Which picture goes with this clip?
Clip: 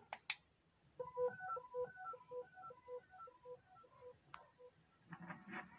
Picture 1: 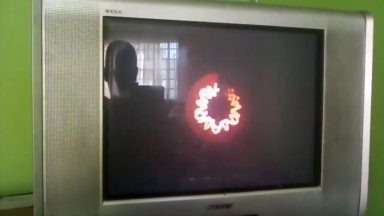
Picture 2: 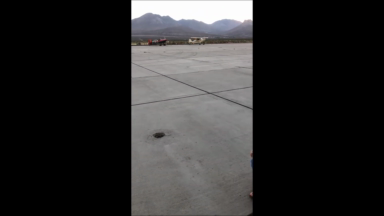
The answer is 1